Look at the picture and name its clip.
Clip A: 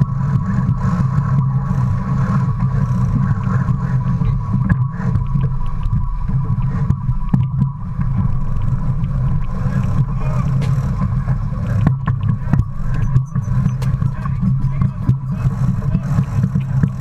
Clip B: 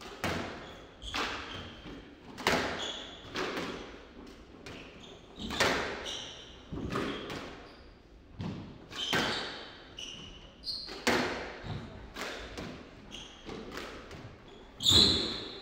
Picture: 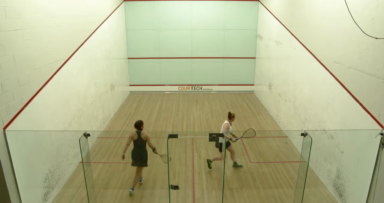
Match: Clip B